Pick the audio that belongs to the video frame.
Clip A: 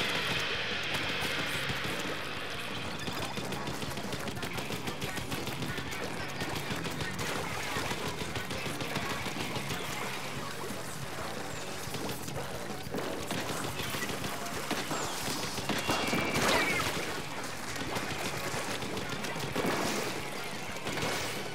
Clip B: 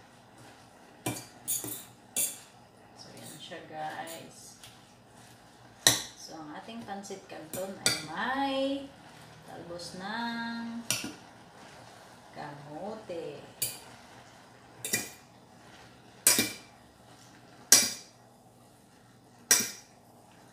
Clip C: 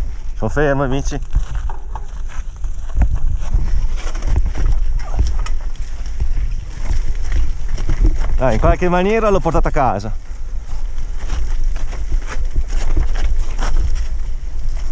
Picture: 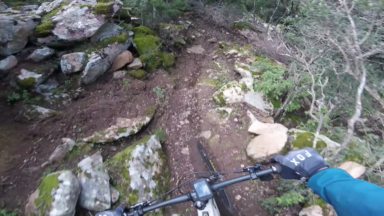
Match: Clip C